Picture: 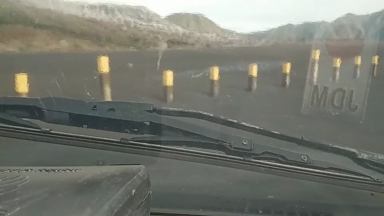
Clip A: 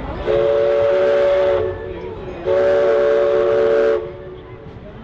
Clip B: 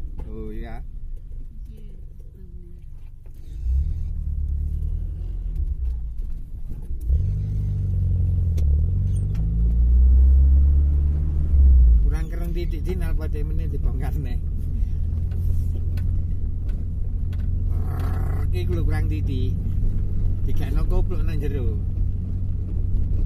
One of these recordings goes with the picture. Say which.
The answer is B